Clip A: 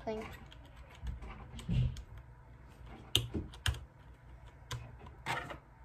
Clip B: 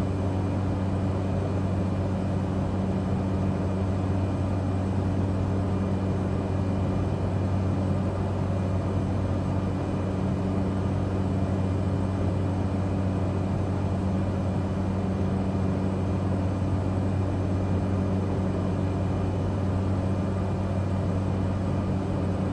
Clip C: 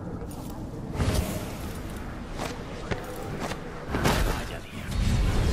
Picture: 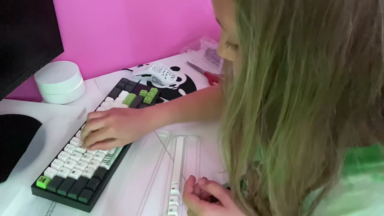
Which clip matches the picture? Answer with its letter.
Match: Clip A